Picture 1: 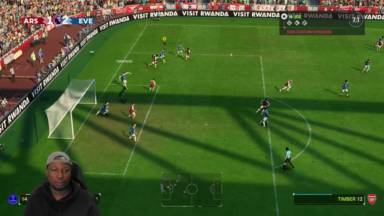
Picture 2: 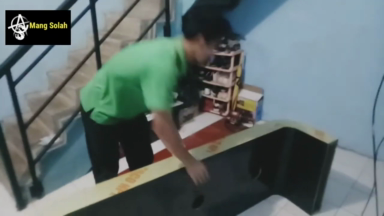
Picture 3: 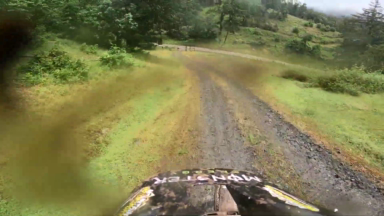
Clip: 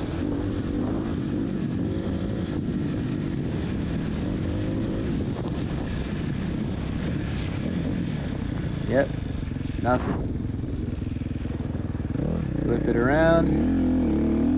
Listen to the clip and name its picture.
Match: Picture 3